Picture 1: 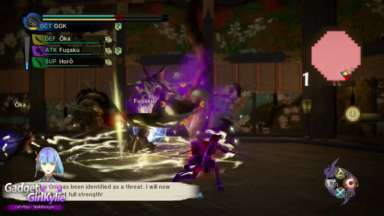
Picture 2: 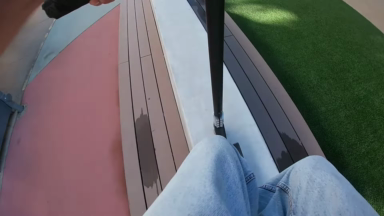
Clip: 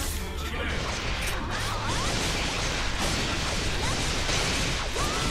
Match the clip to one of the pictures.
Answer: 1